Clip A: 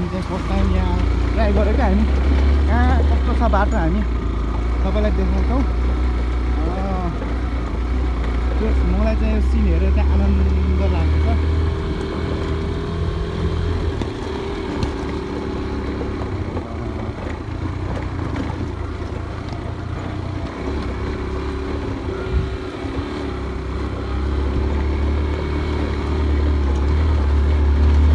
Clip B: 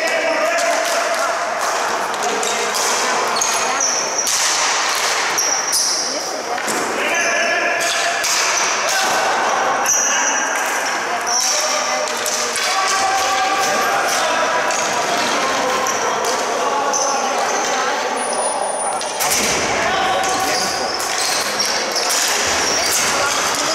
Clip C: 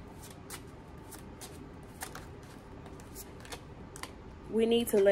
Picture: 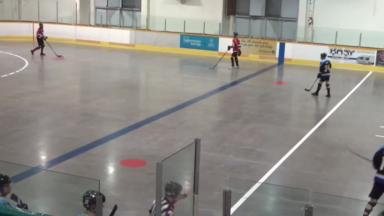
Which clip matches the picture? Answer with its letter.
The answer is B